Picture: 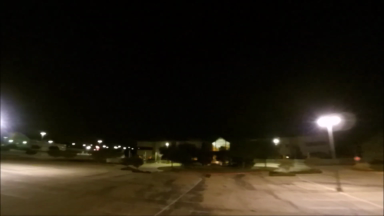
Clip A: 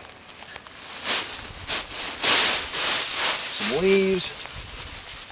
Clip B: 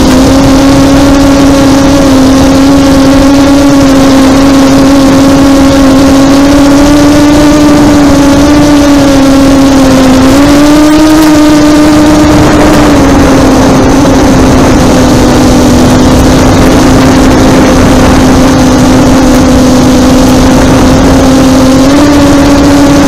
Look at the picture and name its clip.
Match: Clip B